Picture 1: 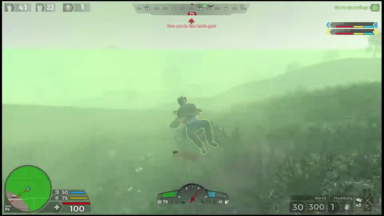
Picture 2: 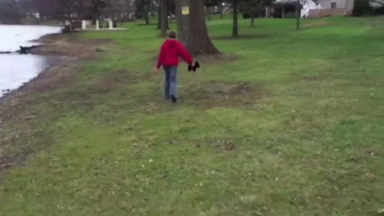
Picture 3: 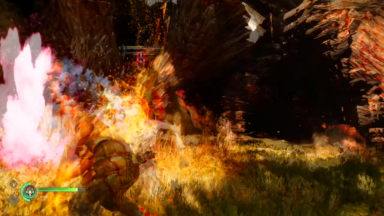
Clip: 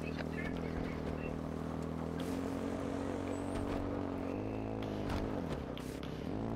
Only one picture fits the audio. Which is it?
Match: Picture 1